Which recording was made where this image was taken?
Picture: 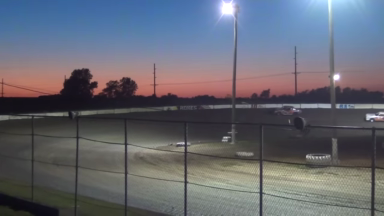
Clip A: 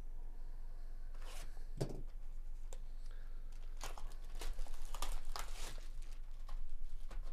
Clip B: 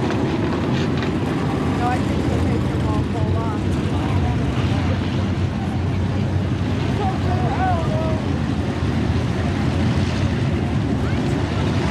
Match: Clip B